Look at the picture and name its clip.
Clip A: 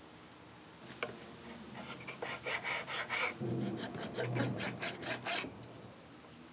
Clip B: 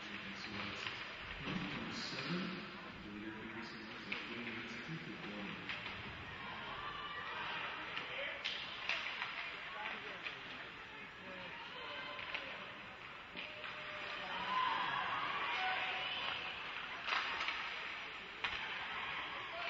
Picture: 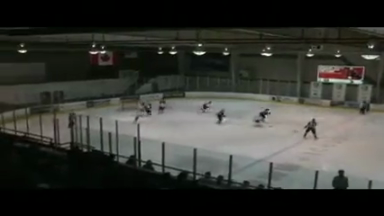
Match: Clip B